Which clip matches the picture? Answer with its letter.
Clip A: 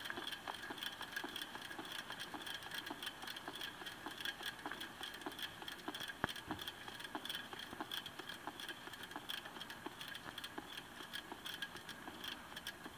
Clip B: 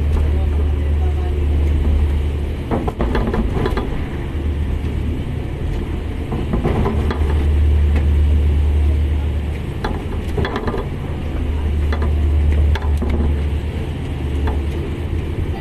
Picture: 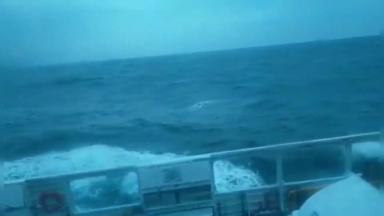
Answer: B